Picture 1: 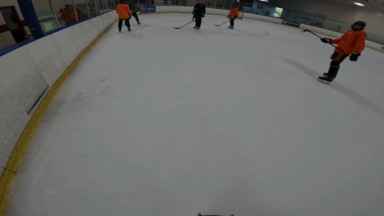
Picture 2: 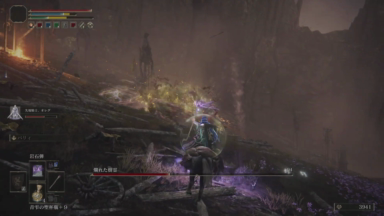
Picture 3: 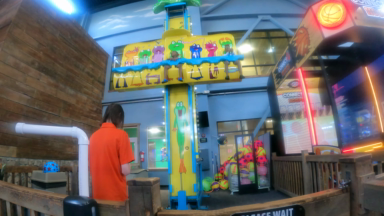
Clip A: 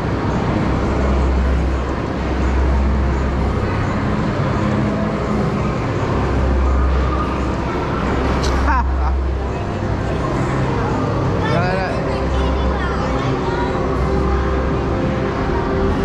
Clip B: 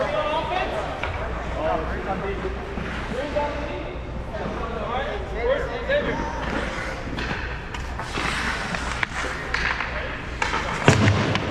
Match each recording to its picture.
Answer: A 3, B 1